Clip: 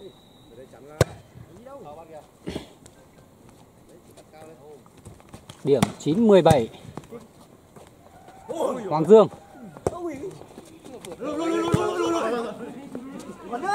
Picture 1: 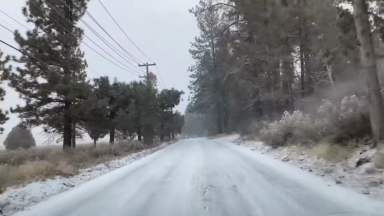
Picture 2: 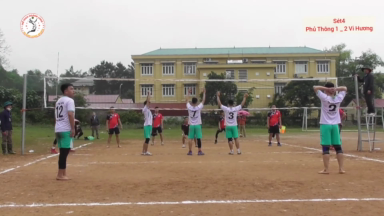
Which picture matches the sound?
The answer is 2